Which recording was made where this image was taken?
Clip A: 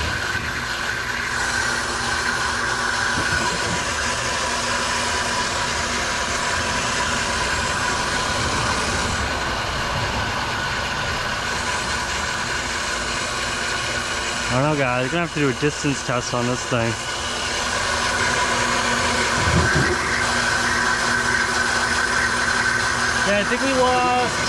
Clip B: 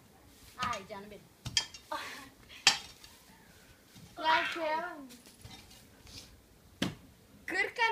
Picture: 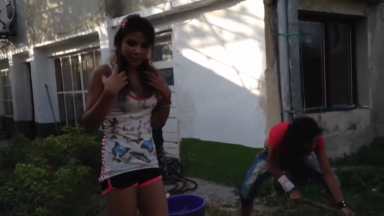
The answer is B